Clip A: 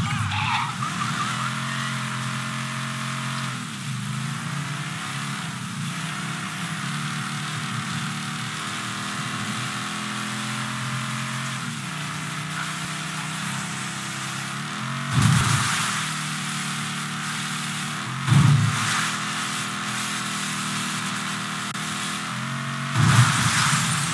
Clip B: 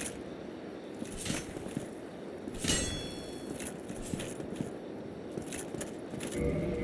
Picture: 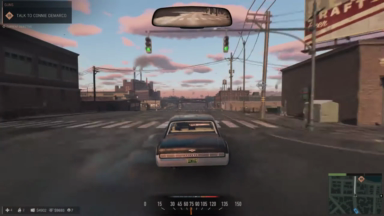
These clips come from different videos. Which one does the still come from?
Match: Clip A